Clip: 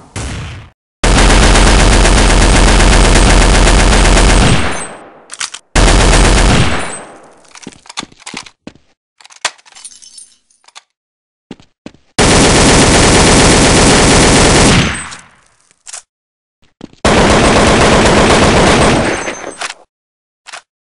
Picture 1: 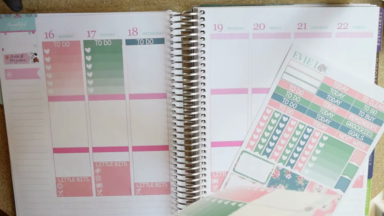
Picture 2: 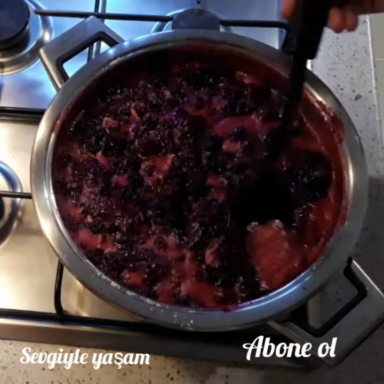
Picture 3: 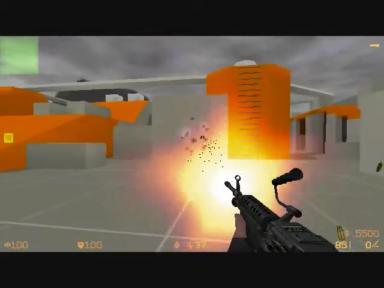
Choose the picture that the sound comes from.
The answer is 3